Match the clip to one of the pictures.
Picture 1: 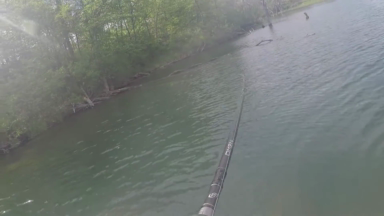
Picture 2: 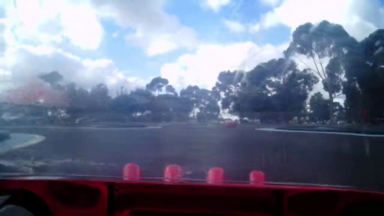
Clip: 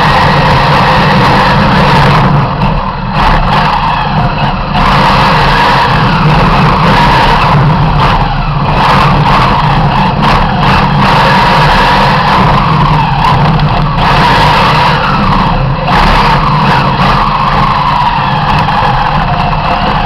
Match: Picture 2